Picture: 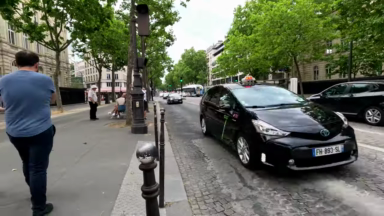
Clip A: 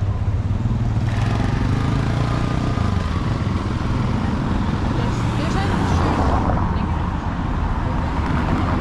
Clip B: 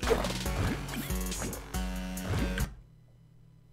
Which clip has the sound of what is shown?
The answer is A